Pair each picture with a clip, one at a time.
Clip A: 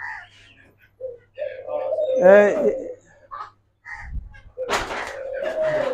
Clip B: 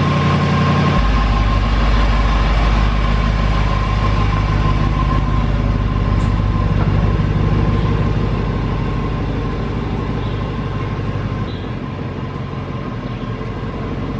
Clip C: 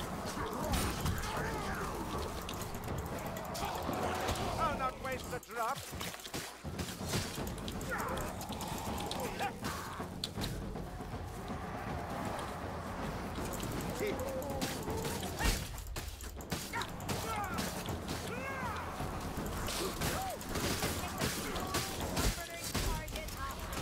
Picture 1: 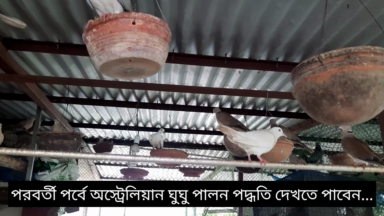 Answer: A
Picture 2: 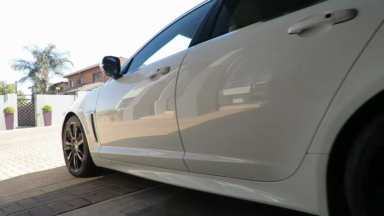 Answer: B